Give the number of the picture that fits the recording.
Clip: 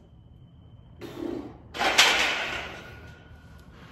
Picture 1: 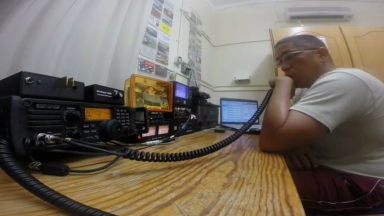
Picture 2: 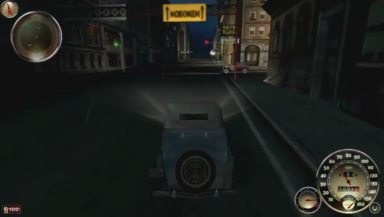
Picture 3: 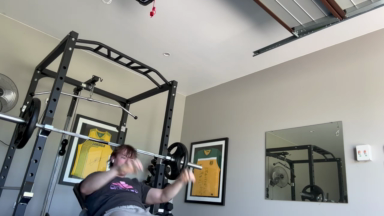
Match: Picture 3